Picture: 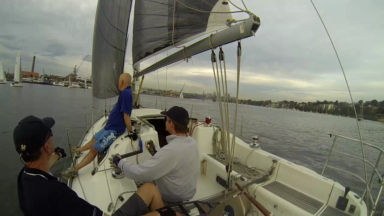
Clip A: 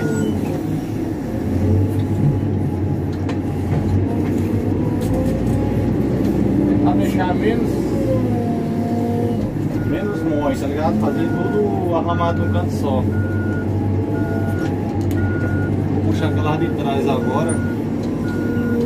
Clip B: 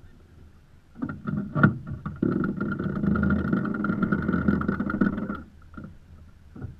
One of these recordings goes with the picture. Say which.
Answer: B